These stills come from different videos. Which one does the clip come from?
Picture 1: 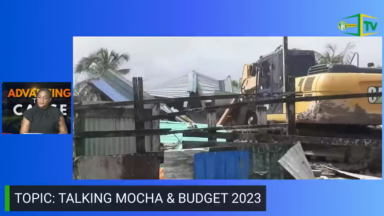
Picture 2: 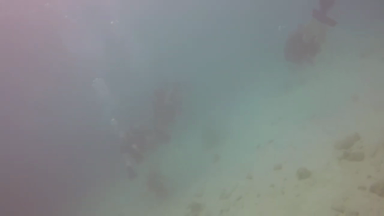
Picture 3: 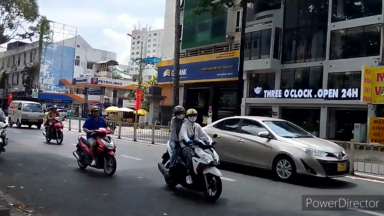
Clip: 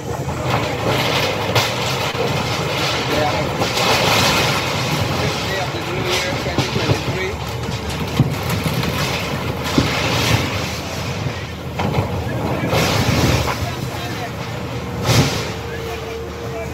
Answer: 1